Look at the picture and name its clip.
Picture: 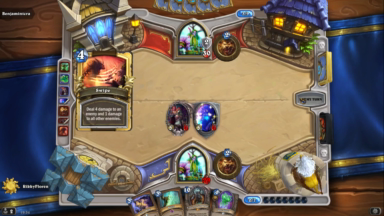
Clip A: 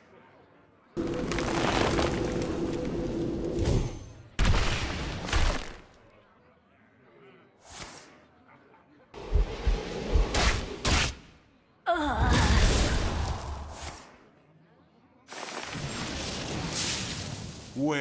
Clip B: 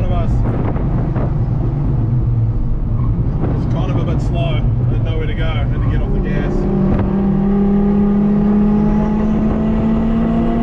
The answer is A